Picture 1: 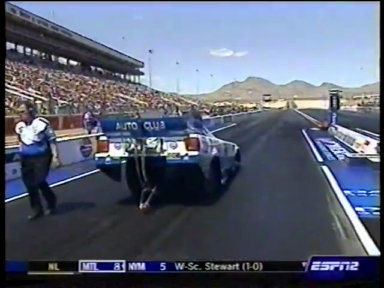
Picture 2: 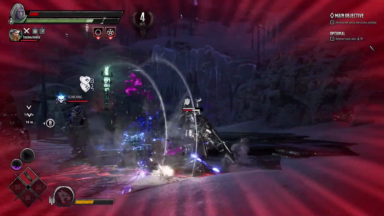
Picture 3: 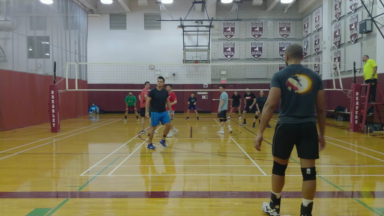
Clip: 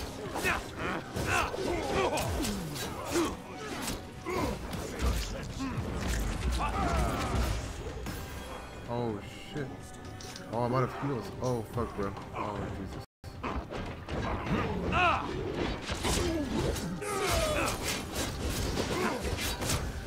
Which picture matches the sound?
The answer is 2